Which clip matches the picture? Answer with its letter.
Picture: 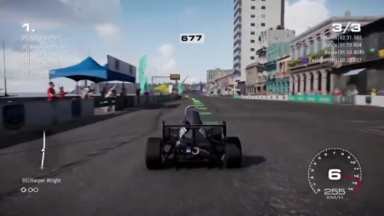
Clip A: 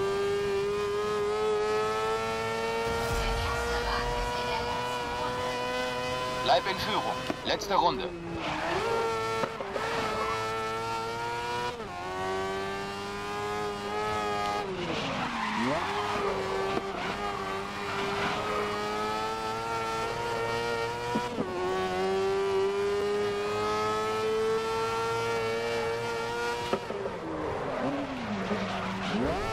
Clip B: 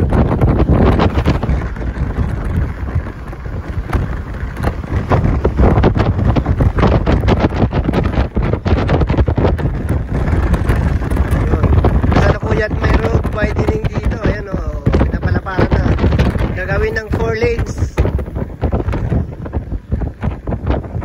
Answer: A